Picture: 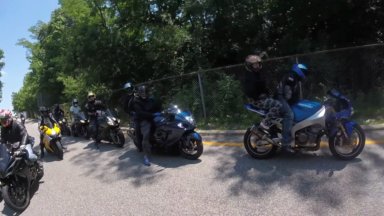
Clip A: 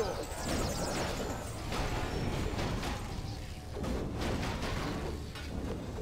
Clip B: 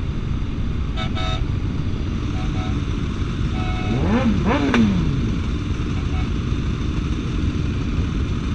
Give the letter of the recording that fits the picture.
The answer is B